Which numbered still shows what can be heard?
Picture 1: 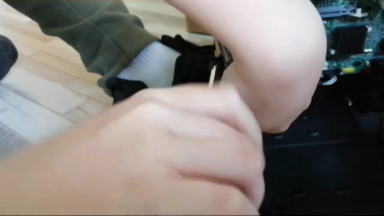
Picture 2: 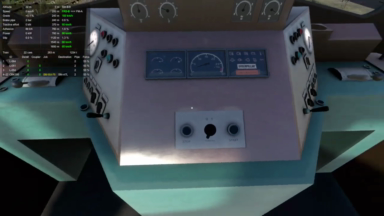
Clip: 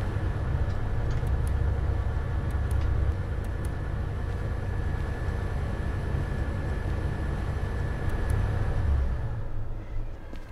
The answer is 2